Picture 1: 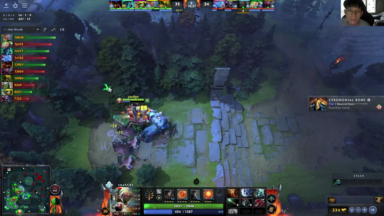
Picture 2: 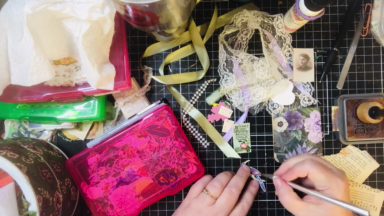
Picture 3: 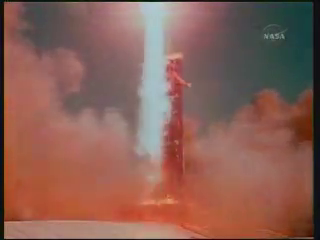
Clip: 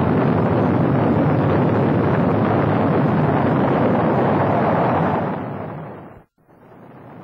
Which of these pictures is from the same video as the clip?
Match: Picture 3